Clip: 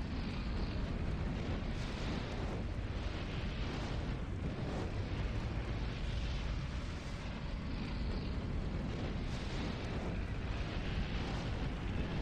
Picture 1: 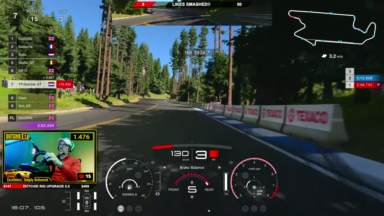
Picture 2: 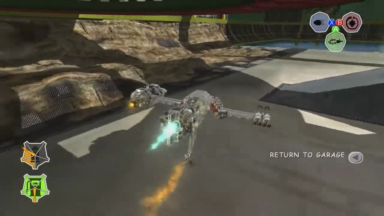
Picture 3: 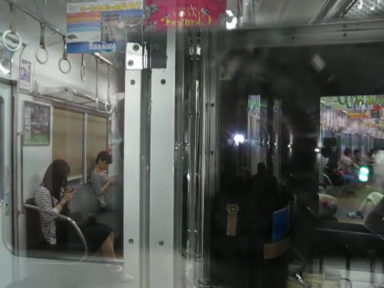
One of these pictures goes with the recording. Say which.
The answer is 2